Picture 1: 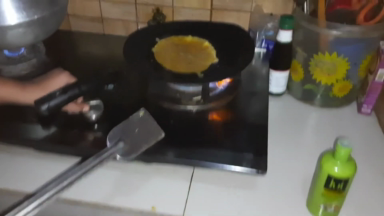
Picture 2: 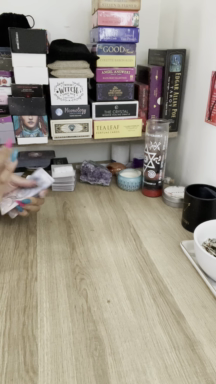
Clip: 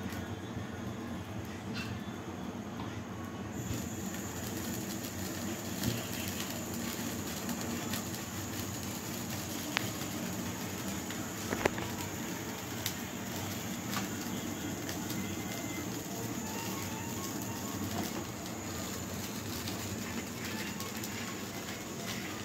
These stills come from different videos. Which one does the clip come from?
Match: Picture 1